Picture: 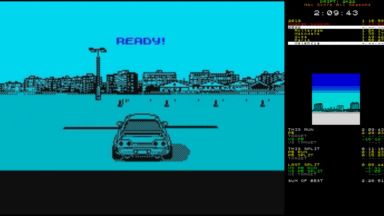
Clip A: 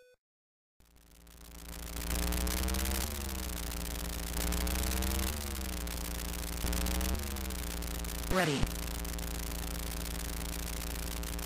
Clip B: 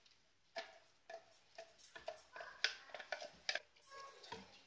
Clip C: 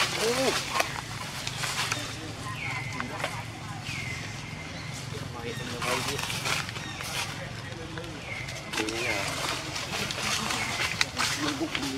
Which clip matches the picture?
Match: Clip A